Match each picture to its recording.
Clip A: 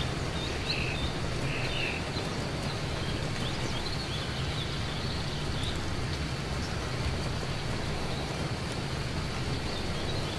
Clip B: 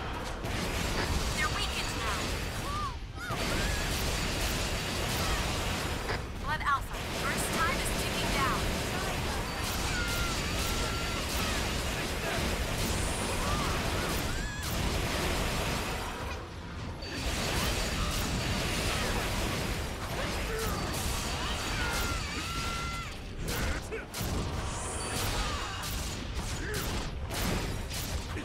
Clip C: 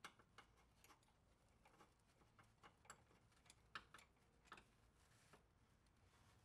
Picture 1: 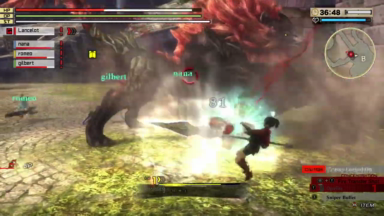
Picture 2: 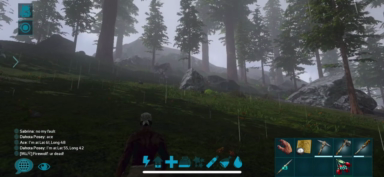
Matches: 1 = B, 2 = A